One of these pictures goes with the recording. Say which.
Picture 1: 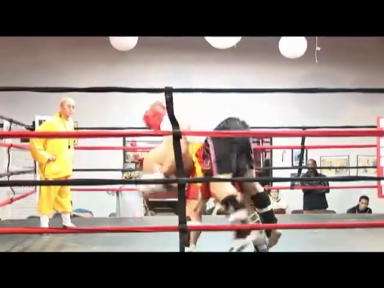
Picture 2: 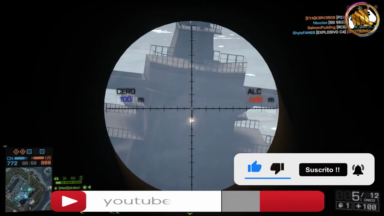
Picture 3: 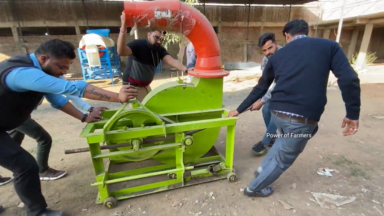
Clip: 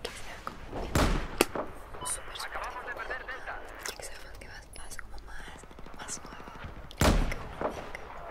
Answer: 2